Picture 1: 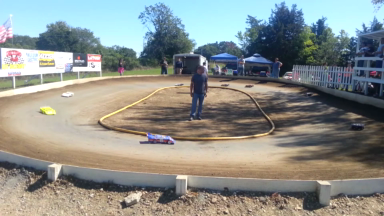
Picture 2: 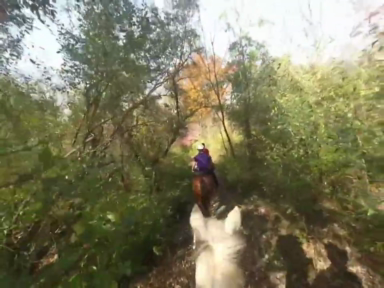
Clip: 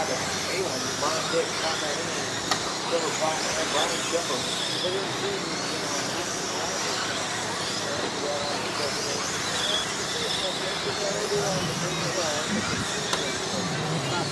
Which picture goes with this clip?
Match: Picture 1